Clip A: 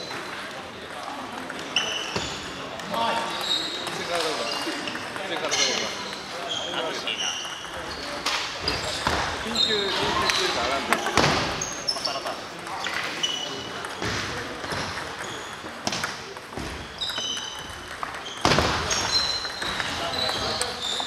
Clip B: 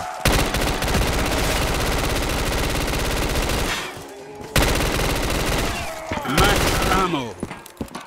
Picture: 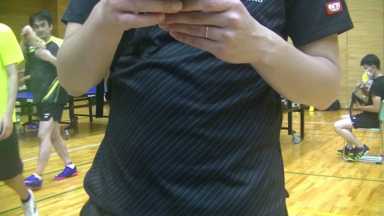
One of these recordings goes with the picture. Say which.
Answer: A